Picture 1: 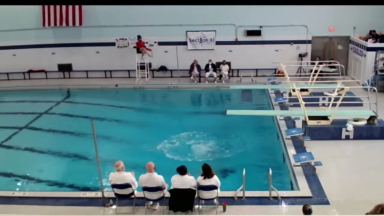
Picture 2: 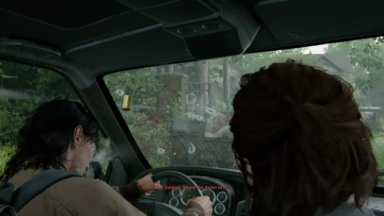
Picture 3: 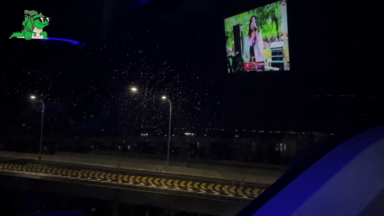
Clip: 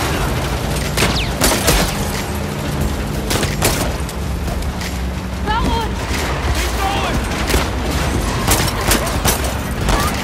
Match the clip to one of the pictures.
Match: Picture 2